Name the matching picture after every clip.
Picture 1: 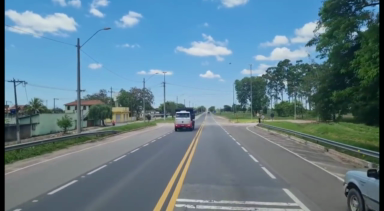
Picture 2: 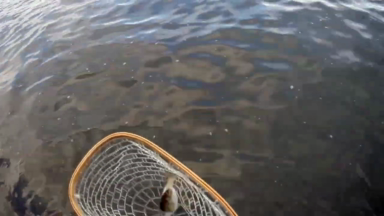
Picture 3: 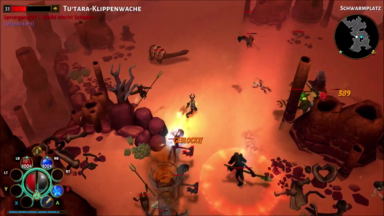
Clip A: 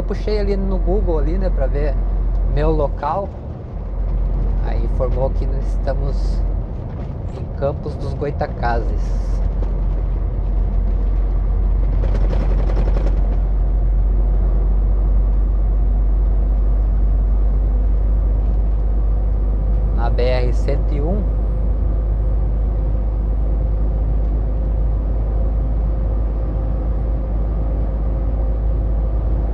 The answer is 1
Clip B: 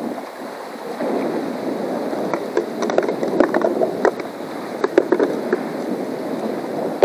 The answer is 2